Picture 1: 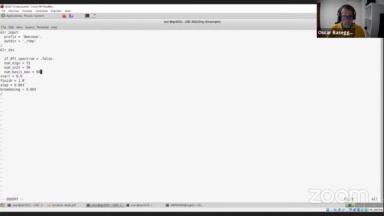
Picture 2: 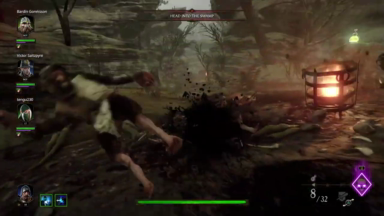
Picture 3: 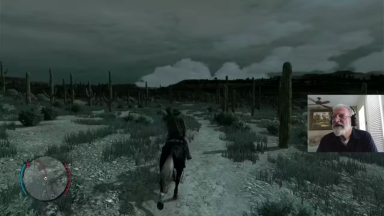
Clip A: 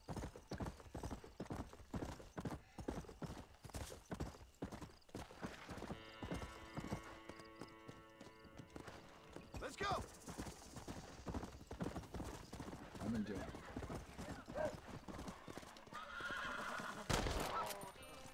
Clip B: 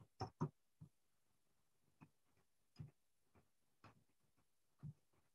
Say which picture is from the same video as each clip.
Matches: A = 3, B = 1